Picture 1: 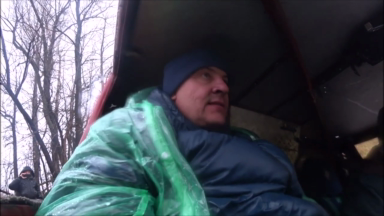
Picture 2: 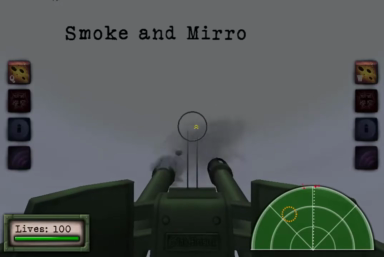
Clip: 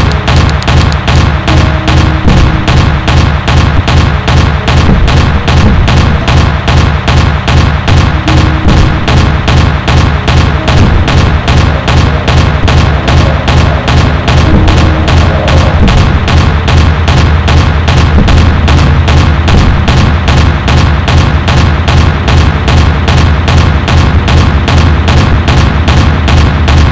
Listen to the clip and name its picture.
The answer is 2